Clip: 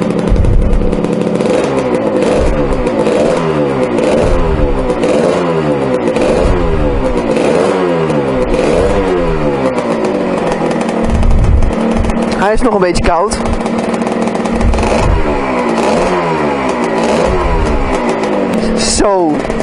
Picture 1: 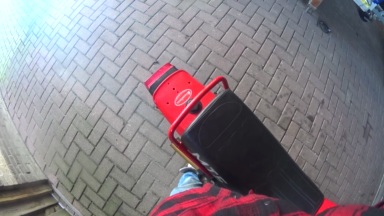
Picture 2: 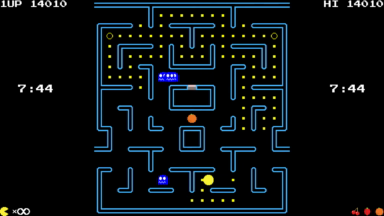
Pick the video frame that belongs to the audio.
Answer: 1